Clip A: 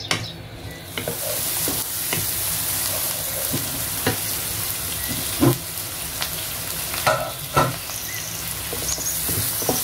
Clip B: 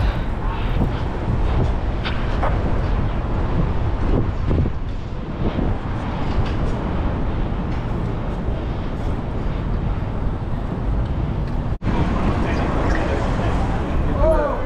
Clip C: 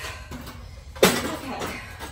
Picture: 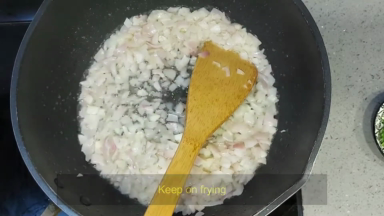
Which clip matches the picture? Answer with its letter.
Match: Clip A